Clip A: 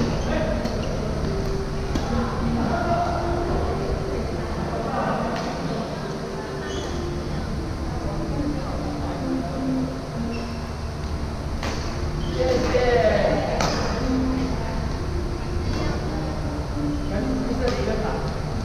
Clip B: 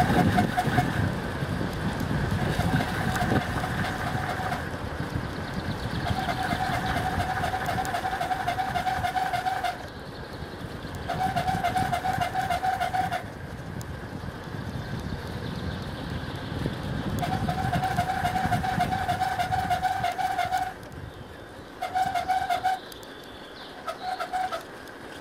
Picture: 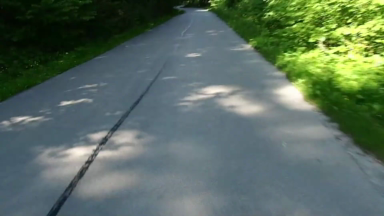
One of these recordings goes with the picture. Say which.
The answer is B